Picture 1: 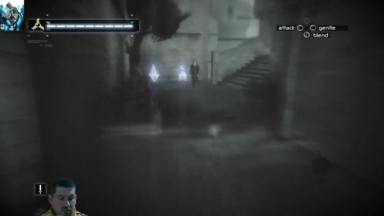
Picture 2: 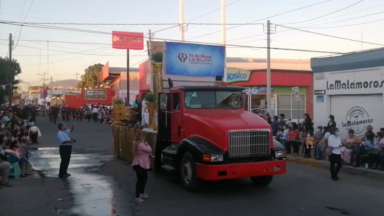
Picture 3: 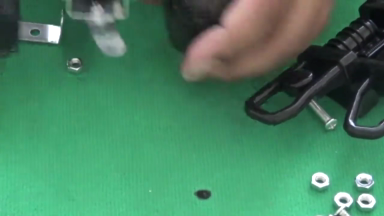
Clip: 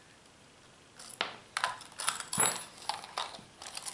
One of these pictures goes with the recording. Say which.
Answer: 3